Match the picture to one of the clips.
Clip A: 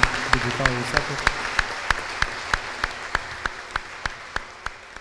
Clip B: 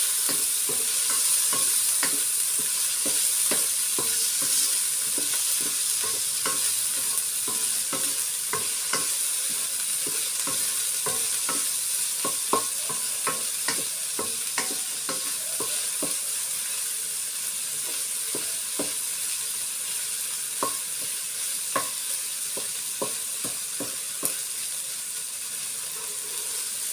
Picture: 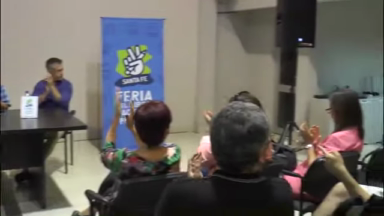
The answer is A